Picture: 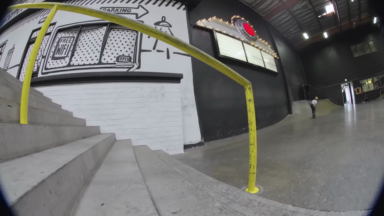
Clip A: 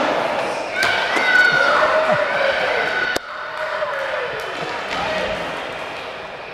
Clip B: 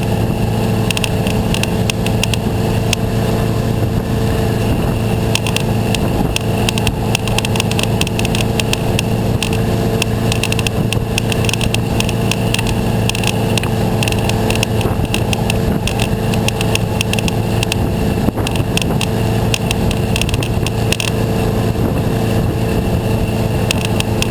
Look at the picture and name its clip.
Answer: A